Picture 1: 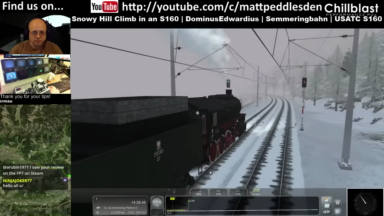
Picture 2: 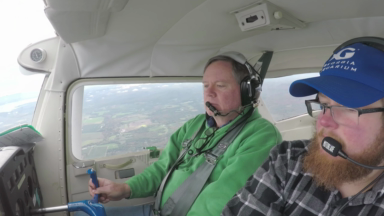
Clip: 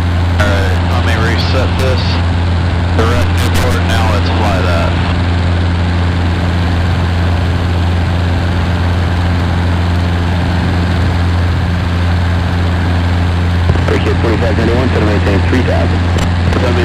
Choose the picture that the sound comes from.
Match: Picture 2